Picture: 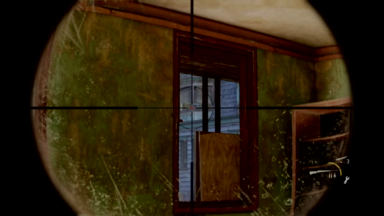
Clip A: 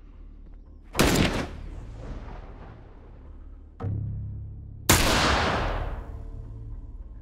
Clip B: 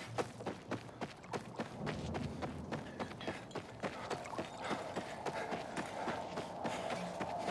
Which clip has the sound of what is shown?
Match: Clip A